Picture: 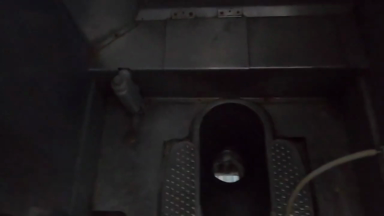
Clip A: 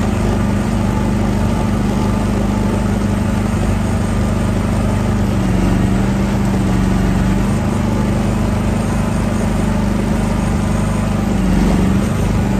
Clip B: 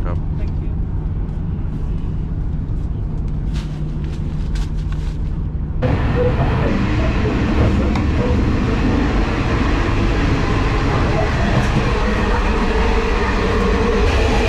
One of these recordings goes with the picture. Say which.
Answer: B